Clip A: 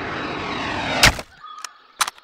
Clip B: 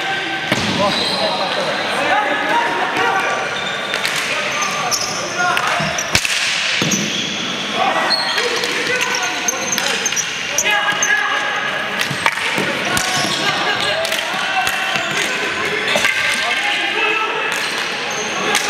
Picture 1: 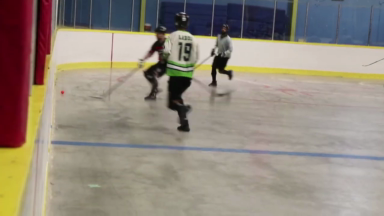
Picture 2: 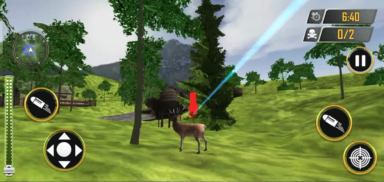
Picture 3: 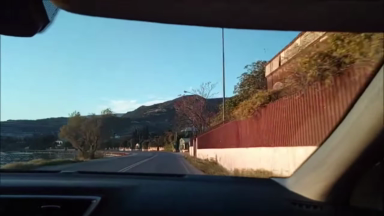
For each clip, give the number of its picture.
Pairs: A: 2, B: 1